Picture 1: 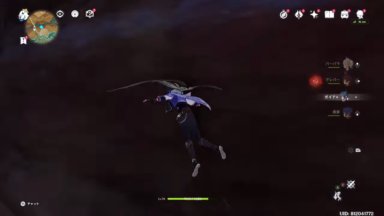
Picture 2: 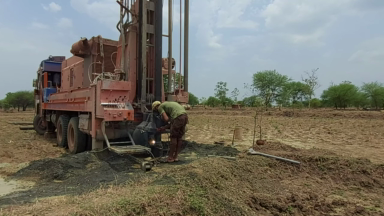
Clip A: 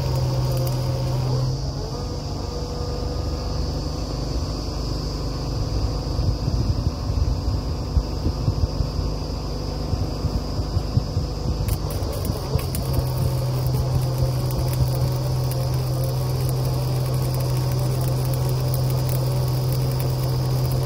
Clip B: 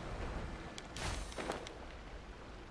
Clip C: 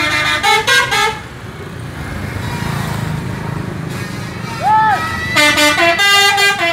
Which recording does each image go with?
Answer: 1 B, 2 A